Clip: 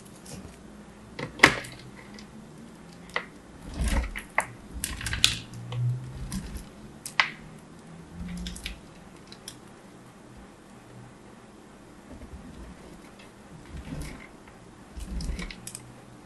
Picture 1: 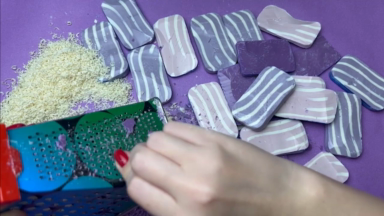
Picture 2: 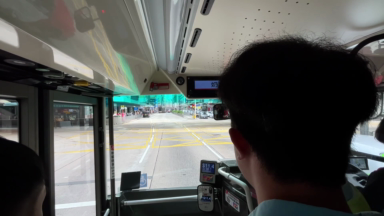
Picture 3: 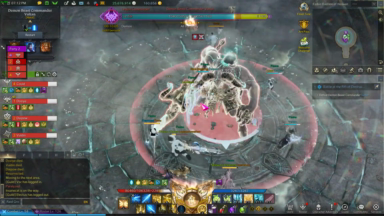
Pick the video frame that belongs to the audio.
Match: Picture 1